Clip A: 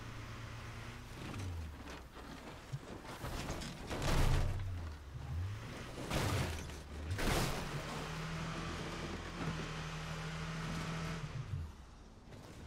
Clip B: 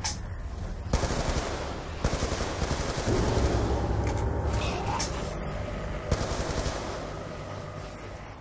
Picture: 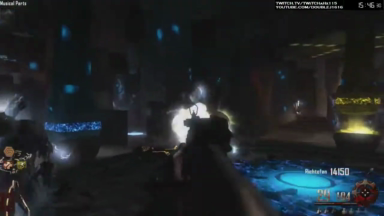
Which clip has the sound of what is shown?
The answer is B